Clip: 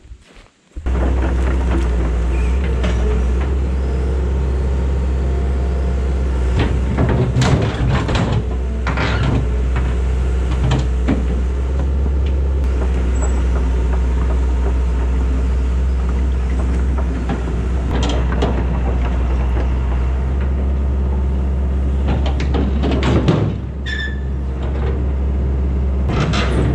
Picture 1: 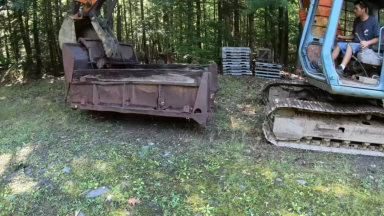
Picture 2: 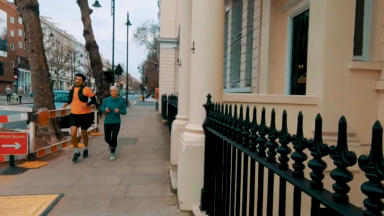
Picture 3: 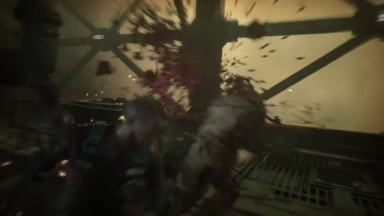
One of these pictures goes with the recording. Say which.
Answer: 1